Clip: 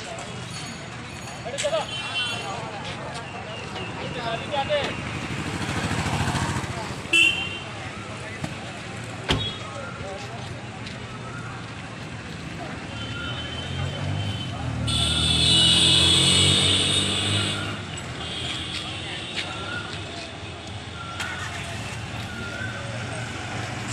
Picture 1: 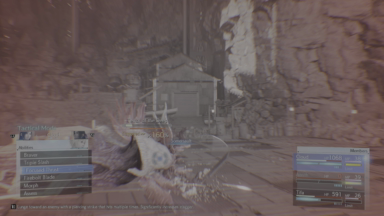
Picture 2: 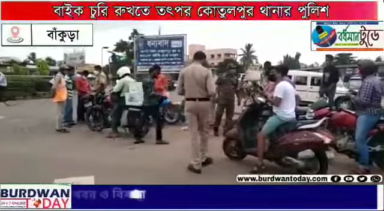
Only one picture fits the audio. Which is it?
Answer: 2